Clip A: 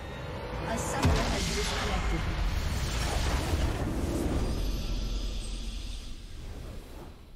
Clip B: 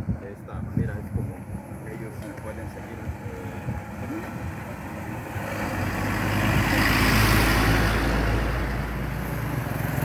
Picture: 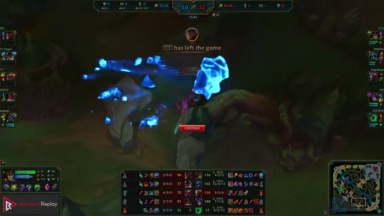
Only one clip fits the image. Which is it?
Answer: A